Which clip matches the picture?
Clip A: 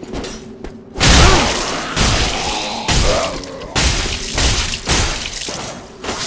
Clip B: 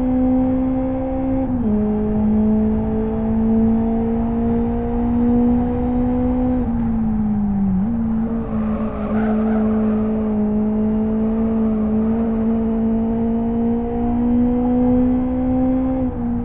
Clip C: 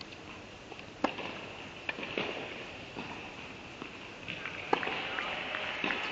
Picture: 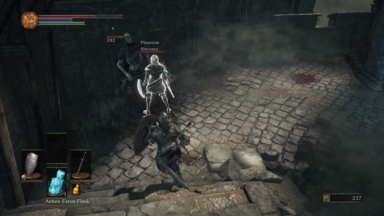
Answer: A